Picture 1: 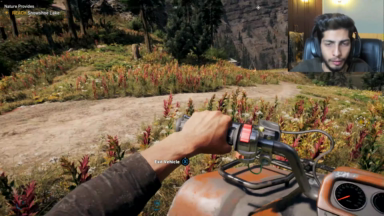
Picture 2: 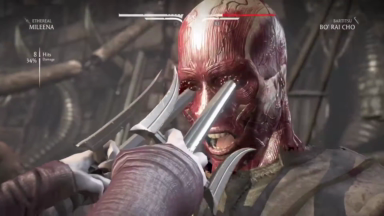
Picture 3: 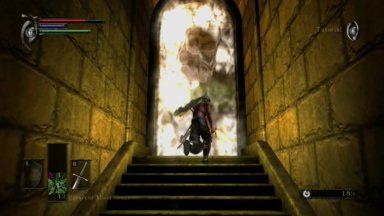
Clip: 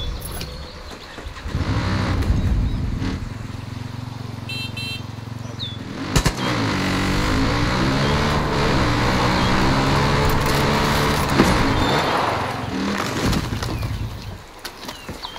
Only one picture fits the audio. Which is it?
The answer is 1